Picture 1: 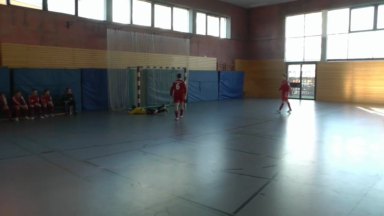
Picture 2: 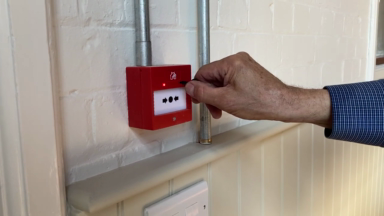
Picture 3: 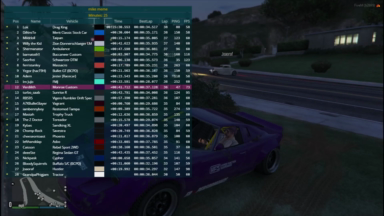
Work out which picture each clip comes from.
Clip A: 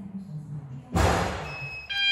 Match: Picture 2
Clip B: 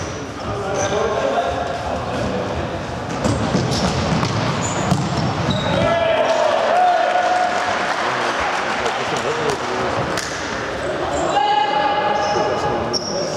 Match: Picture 1